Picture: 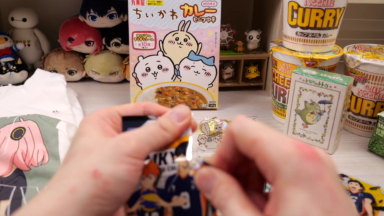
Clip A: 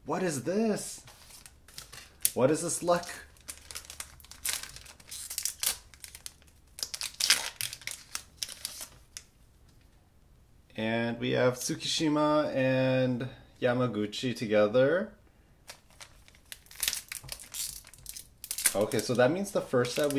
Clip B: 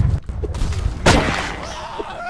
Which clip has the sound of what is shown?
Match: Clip A